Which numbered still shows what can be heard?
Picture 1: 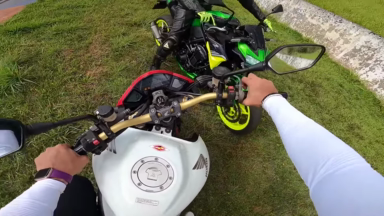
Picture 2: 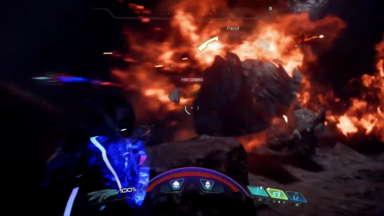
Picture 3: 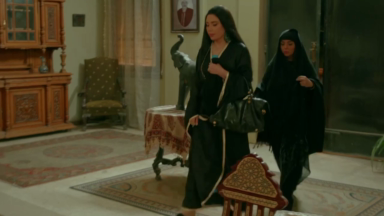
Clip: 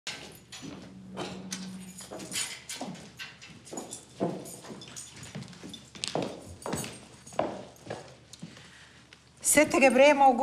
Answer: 3